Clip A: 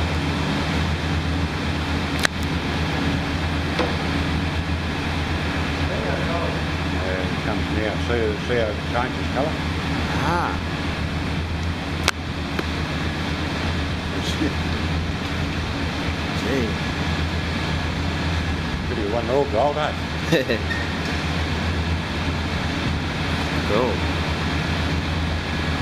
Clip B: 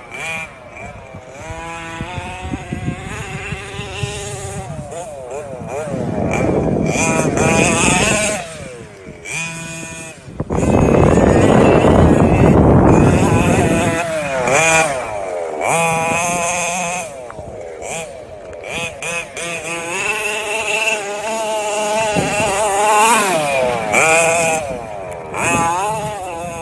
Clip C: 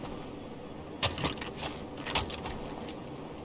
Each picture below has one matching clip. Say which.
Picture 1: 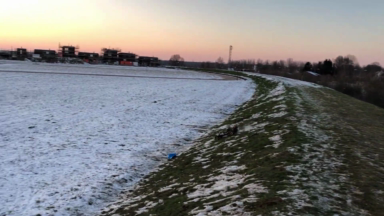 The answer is B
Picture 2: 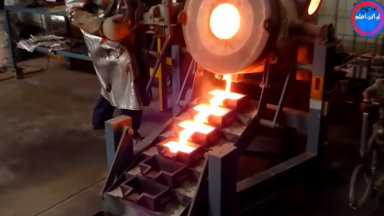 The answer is A